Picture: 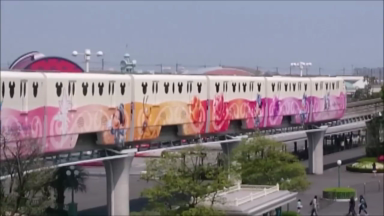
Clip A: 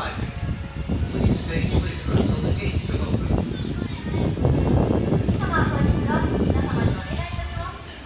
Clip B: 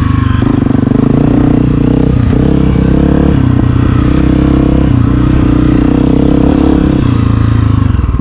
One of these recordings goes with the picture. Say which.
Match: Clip A